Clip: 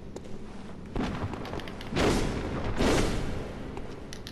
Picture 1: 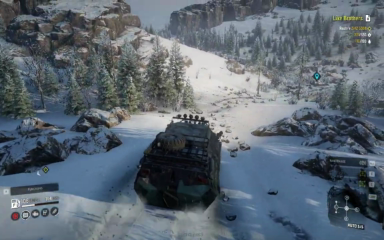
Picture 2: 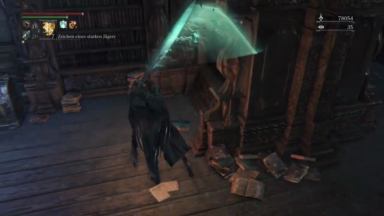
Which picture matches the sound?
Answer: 2